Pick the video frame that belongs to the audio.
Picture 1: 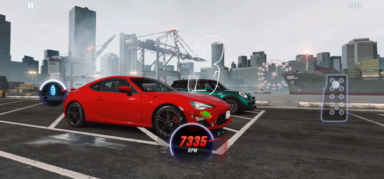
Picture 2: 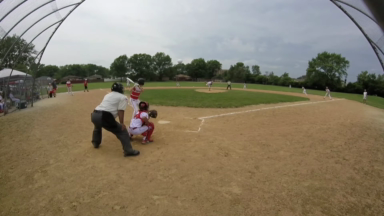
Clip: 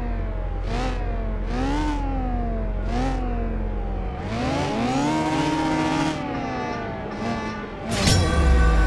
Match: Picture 1